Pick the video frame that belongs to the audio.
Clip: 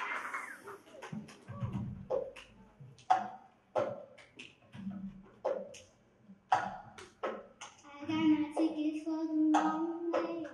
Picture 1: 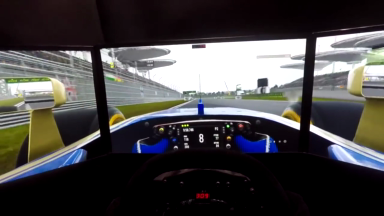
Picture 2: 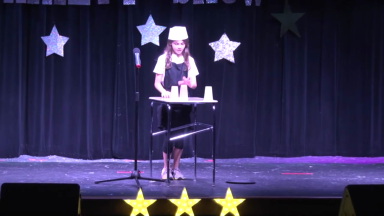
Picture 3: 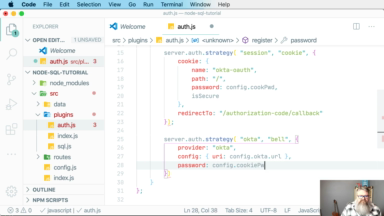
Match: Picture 2